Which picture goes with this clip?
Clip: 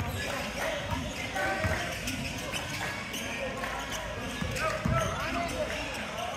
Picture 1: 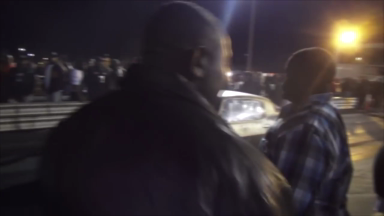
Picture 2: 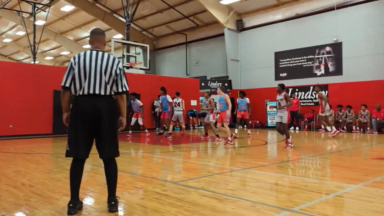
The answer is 2